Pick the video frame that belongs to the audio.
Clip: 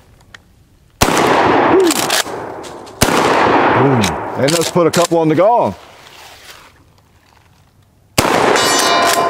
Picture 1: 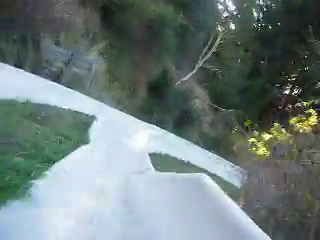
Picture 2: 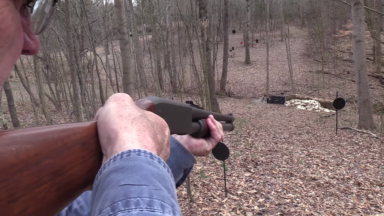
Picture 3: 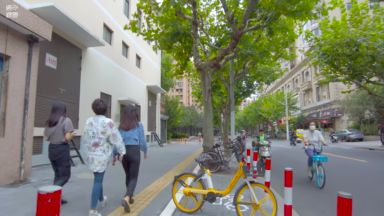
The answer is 2